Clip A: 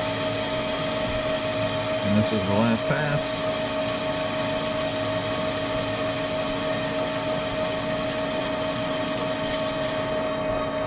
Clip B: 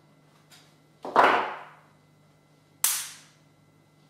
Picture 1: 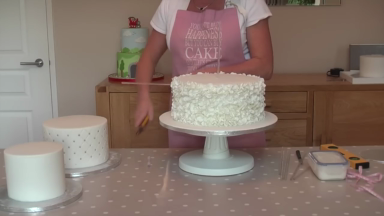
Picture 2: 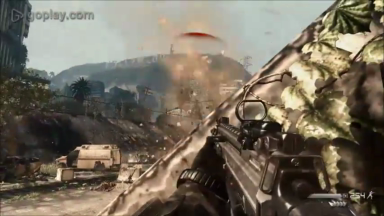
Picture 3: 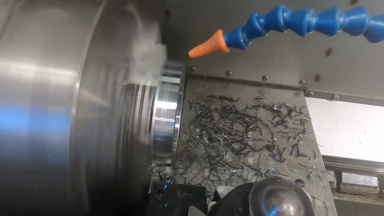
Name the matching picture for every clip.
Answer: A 3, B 1